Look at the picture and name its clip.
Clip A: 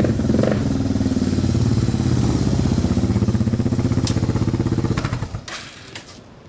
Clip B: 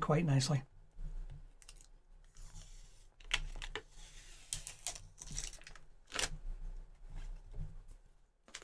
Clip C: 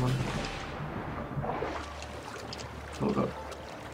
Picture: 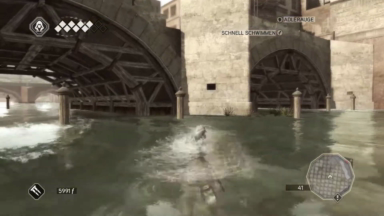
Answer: C